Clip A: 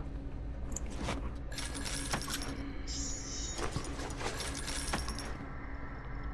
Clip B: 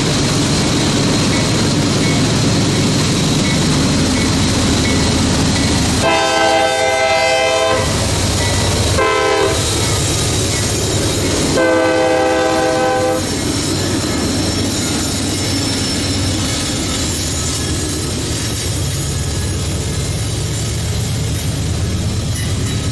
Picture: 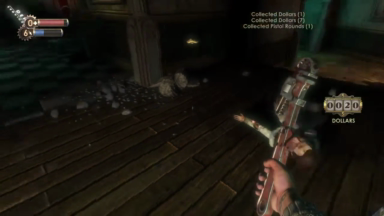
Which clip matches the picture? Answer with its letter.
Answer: A